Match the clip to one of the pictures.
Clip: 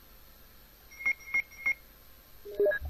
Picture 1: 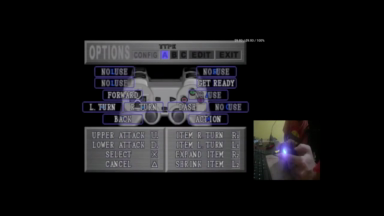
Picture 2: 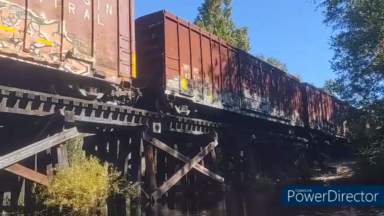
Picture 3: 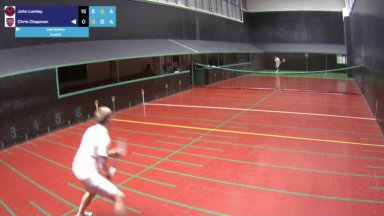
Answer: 1